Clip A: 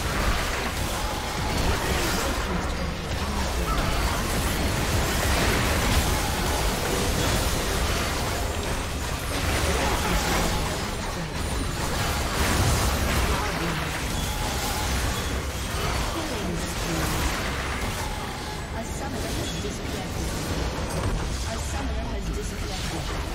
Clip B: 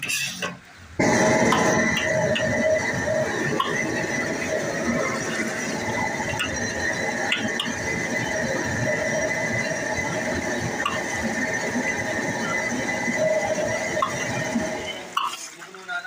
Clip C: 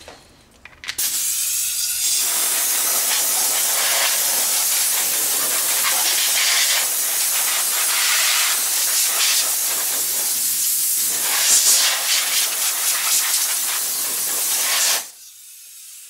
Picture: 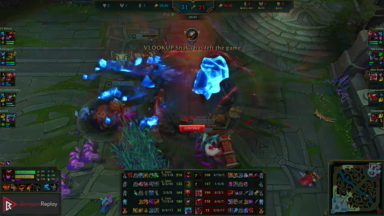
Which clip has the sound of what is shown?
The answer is A